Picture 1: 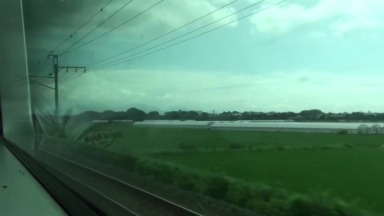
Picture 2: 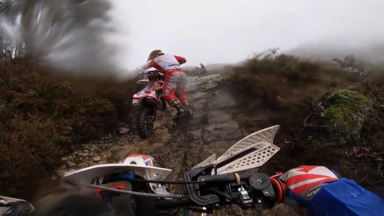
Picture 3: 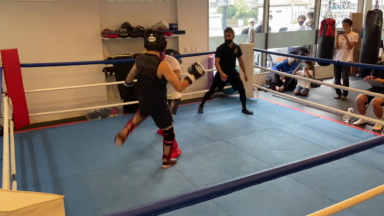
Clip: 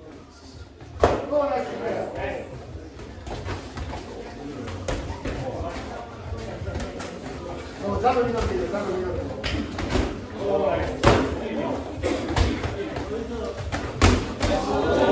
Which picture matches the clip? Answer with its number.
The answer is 3